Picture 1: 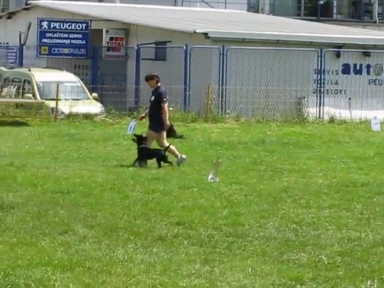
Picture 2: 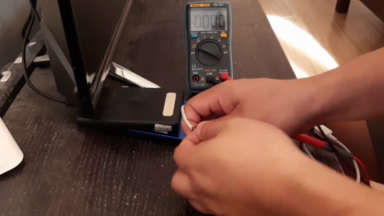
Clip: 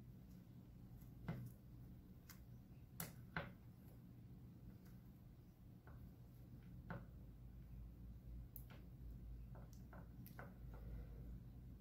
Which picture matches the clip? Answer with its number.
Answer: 2